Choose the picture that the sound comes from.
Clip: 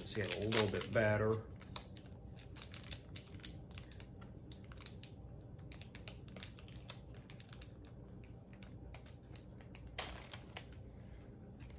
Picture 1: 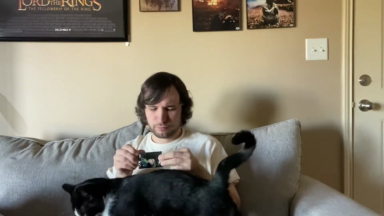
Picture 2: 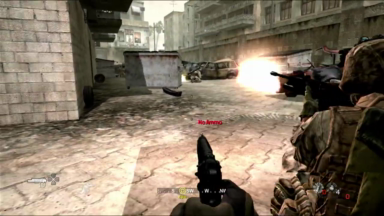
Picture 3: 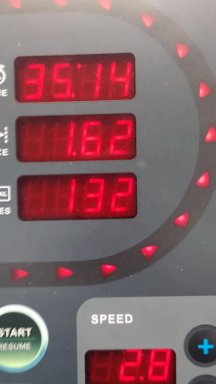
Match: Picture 1